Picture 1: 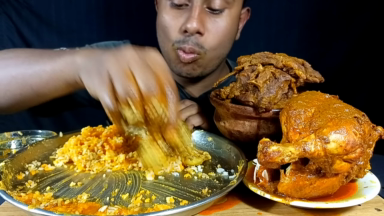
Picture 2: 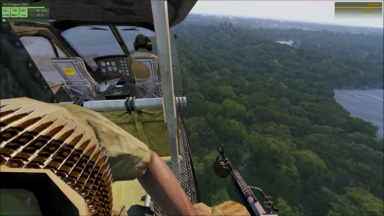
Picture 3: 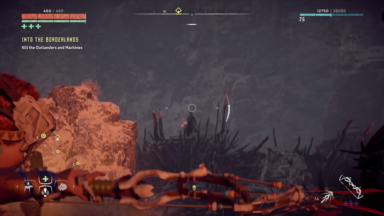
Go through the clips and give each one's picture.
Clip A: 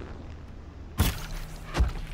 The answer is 3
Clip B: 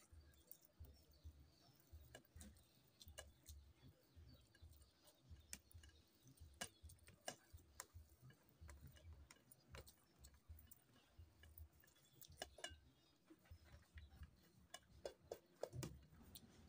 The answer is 1